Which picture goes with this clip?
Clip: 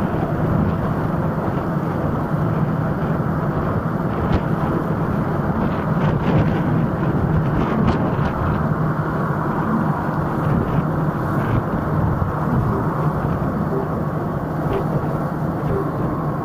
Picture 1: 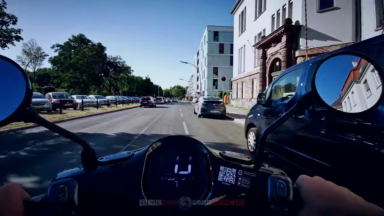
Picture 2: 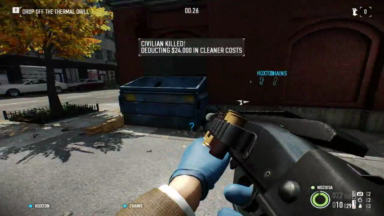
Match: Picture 1